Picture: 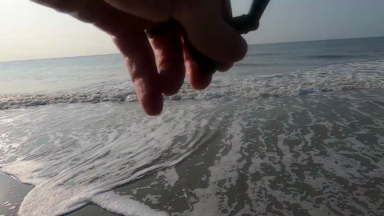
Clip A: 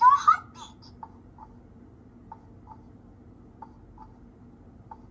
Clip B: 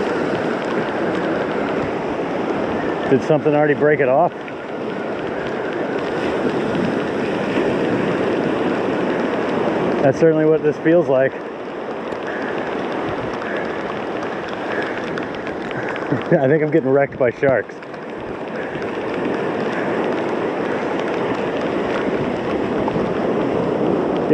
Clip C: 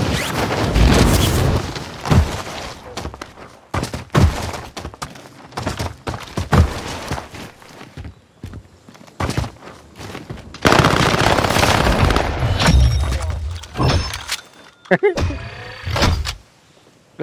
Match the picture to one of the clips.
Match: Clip B